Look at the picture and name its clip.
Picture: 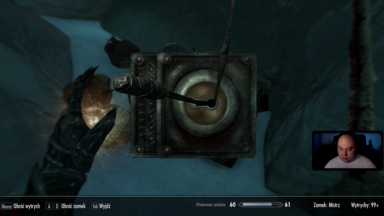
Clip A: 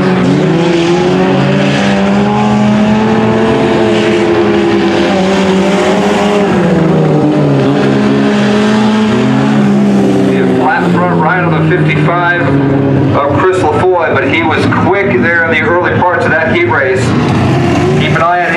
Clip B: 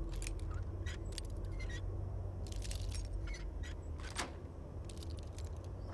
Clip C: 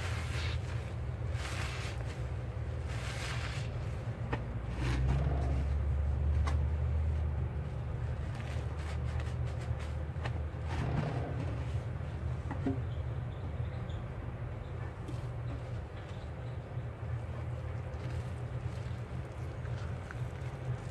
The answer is B